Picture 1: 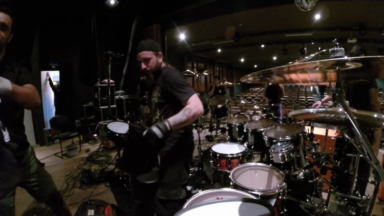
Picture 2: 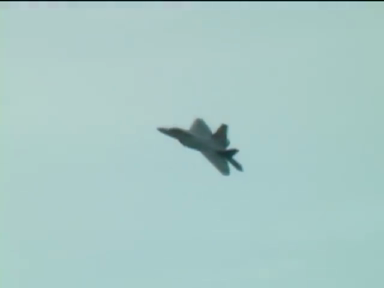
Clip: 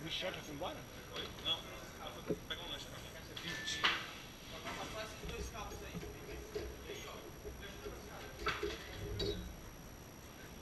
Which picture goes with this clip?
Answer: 1